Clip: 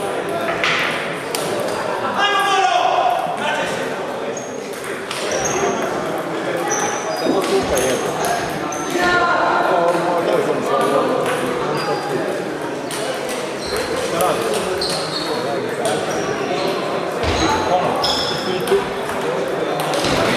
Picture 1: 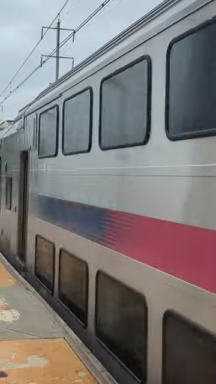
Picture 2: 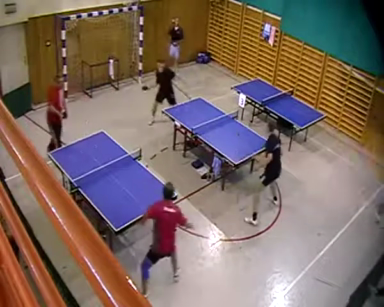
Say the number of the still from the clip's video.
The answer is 2